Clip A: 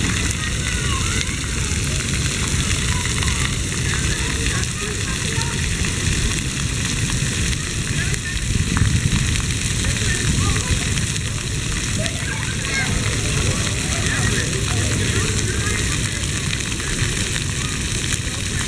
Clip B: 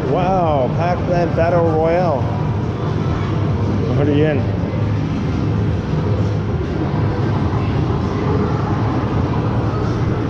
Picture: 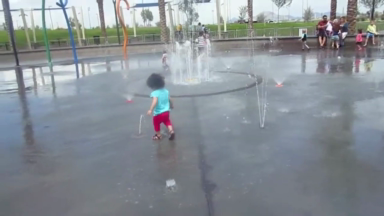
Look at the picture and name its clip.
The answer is A